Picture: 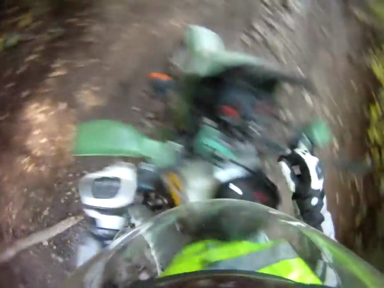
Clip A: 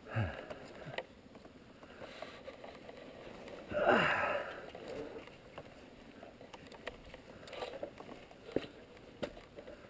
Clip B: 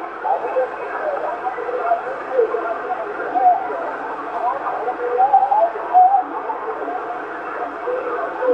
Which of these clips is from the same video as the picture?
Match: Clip A